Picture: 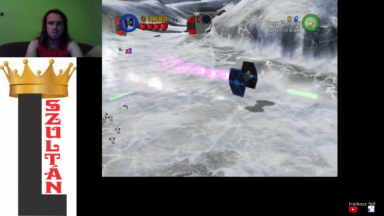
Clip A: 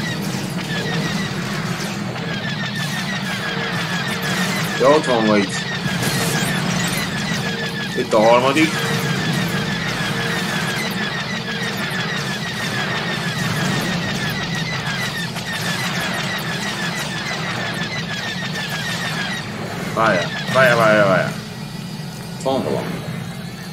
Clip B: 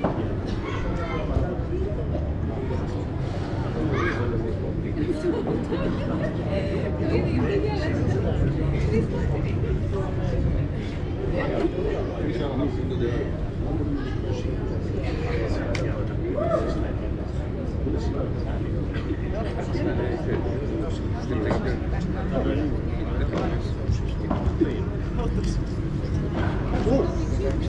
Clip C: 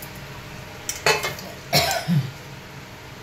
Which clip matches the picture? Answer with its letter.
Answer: A